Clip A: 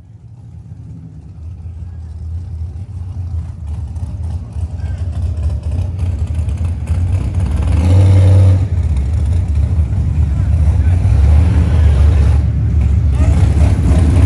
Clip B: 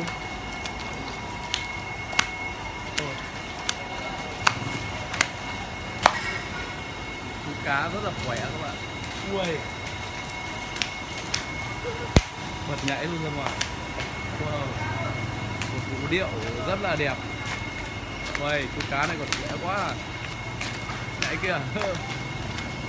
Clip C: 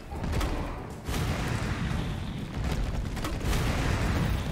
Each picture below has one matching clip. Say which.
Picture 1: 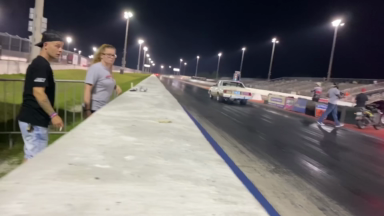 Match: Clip A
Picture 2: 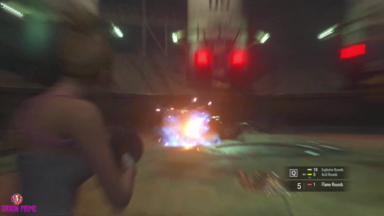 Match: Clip C